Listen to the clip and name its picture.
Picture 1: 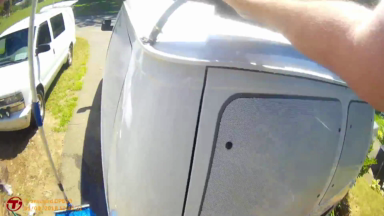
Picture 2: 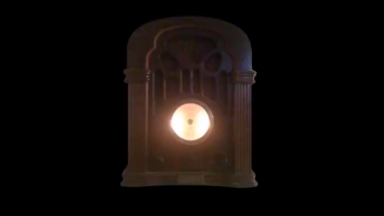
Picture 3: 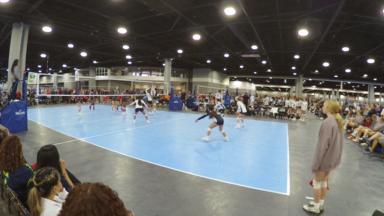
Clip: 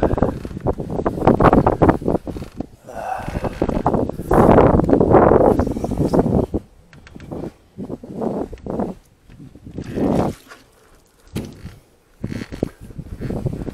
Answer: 1